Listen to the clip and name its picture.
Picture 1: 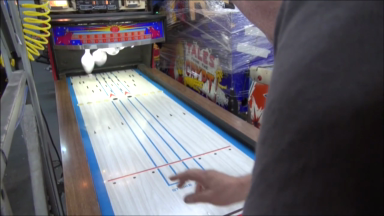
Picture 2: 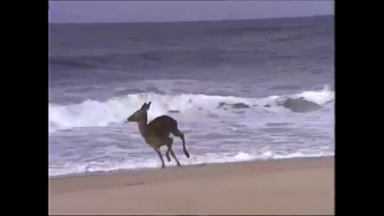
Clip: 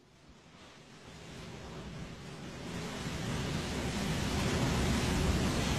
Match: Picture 2